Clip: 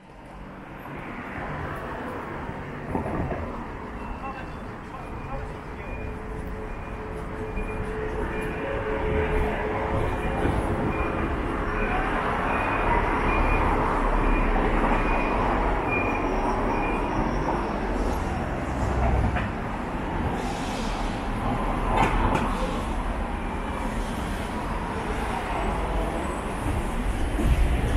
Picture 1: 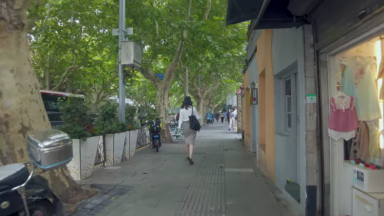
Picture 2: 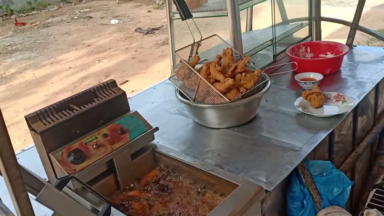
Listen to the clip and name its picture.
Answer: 1